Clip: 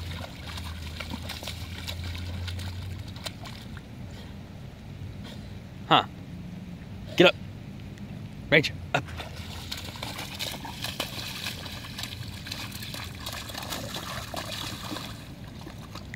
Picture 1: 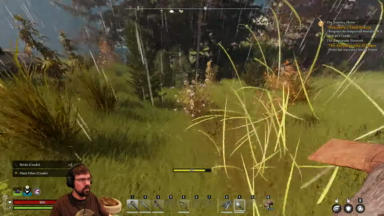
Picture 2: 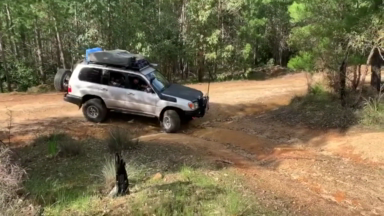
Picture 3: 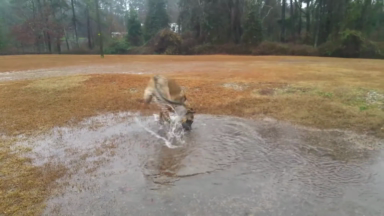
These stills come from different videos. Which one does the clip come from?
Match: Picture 3